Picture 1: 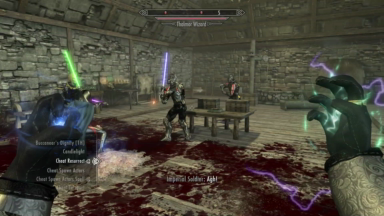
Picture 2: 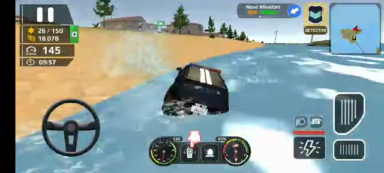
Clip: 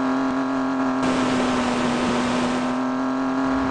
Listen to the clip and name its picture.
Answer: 2